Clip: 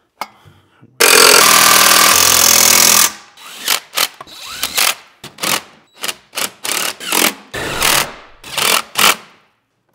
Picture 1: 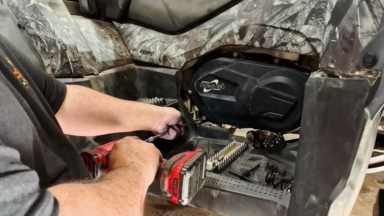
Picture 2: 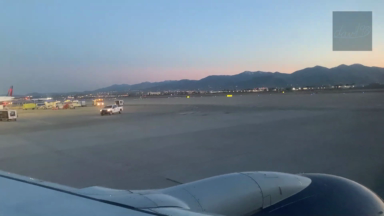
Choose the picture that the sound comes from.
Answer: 1